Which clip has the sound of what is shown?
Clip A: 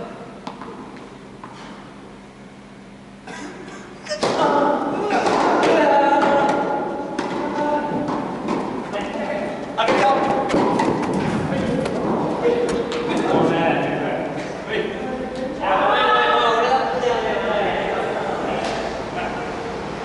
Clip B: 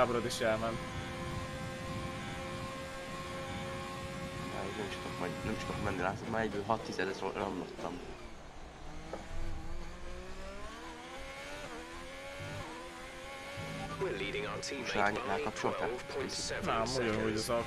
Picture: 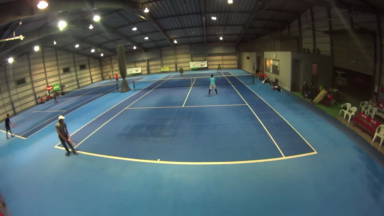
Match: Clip A